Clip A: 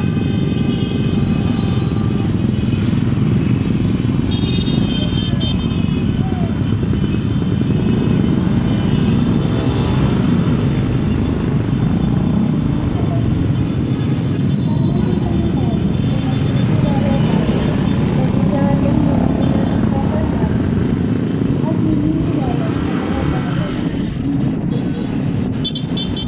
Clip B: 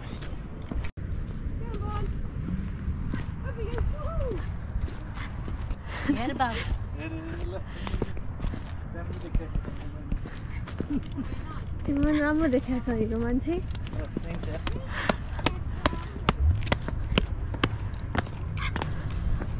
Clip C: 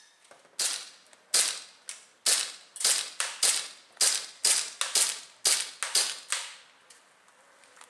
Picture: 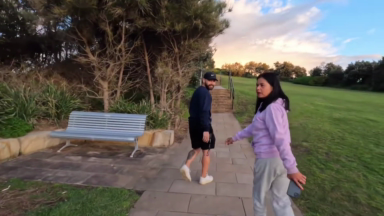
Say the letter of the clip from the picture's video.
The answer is B